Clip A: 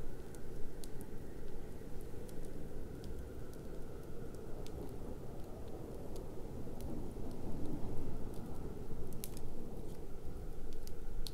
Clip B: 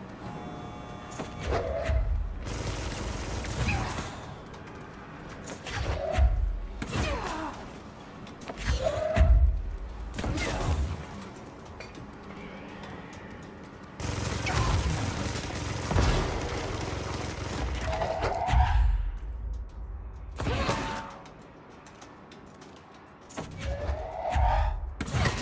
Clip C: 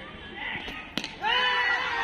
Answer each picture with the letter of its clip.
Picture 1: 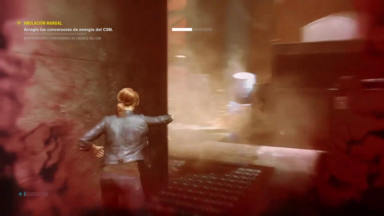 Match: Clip B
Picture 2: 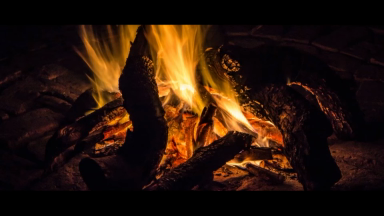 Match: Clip A